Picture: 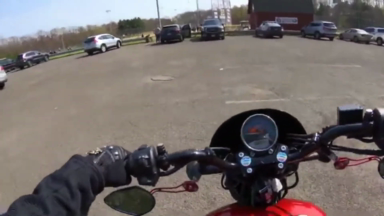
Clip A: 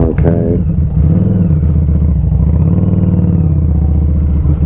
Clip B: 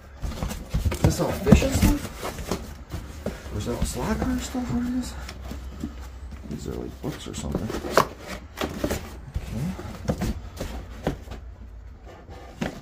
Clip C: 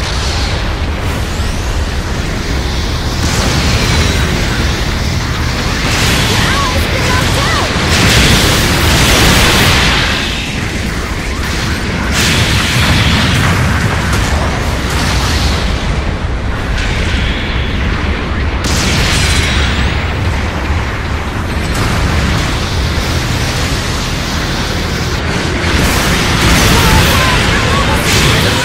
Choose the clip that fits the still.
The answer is A